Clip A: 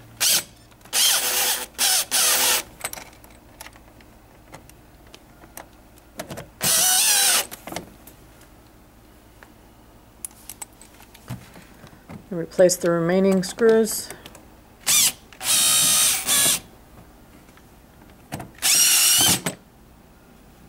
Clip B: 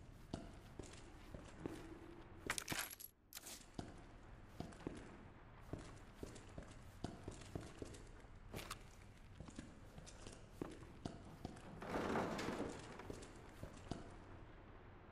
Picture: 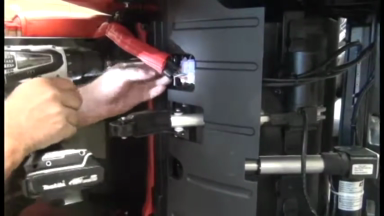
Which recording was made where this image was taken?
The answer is A